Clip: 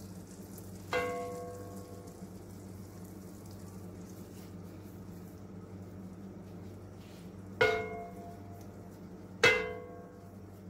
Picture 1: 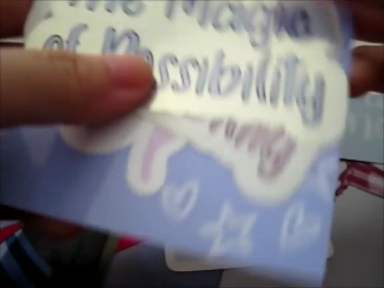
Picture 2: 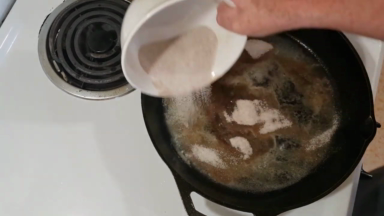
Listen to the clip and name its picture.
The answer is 2